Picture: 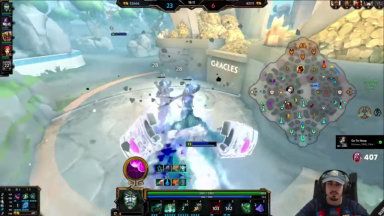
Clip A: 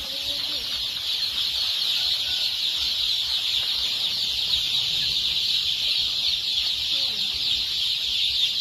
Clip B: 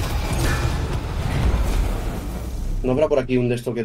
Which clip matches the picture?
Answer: B